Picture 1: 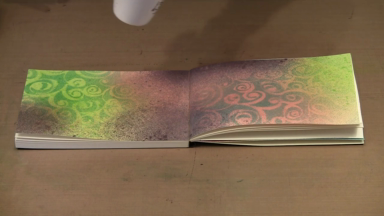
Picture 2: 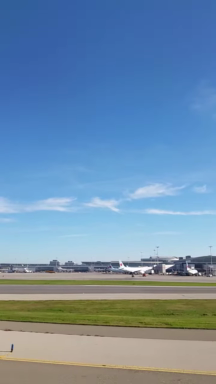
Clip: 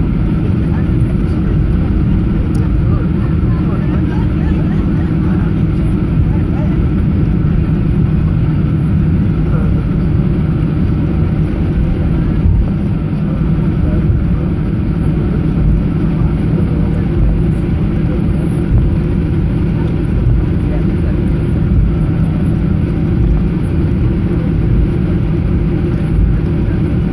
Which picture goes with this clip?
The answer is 2